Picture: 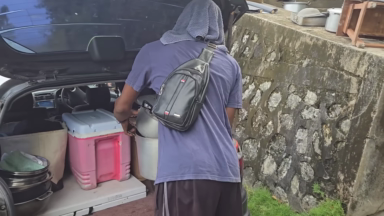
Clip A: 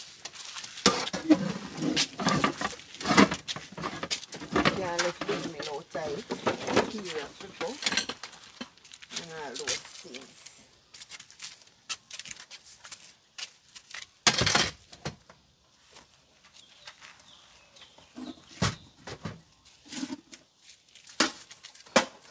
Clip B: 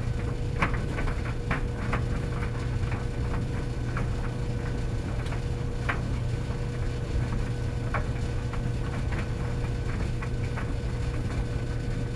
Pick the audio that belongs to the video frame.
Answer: A